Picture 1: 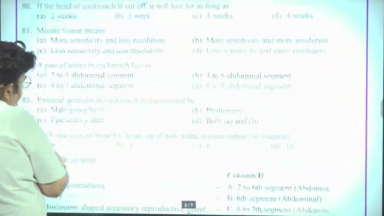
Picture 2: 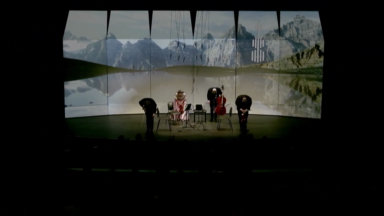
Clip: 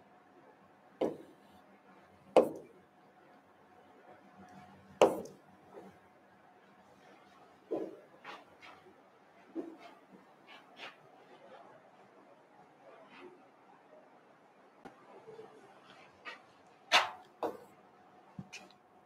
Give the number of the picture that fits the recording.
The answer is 1